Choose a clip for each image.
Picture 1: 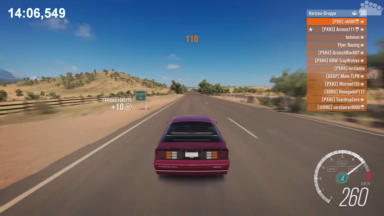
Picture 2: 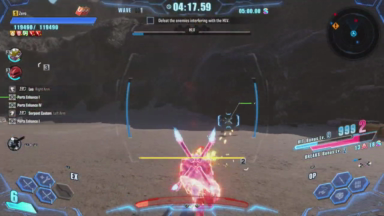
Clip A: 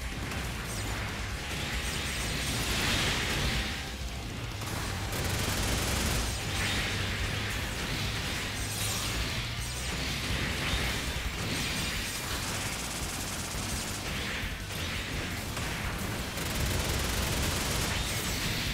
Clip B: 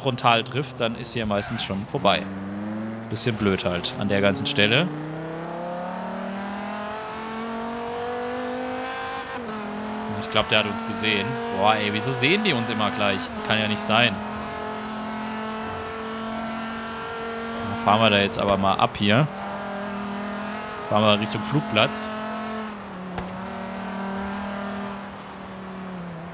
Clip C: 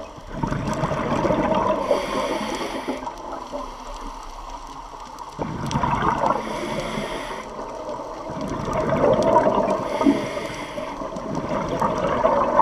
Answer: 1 B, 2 A